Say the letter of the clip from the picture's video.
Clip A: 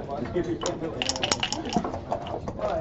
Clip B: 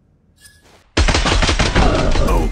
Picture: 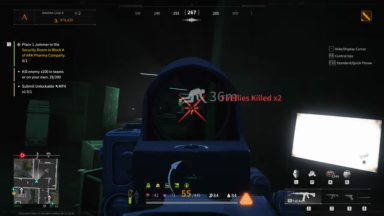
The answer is B